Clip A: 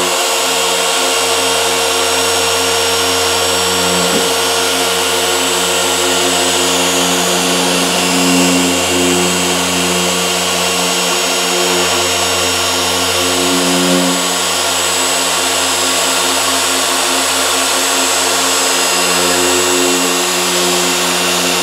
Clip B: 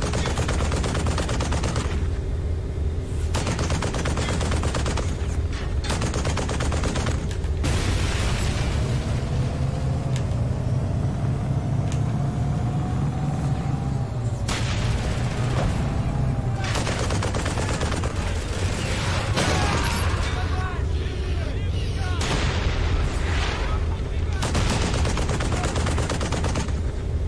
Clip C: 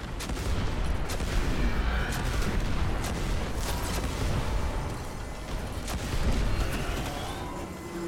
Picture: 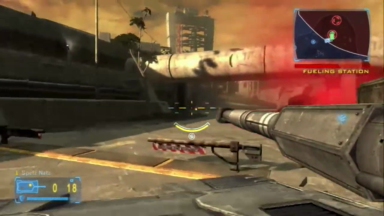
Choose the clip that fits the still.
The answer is B